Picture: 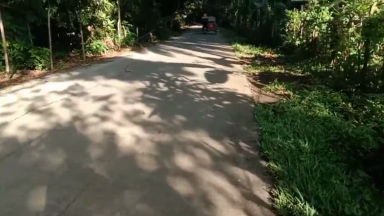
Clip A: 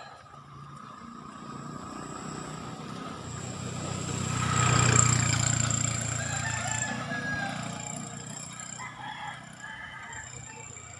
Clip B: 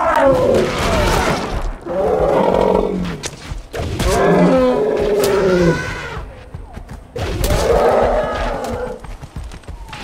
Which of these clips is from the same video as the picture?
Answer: A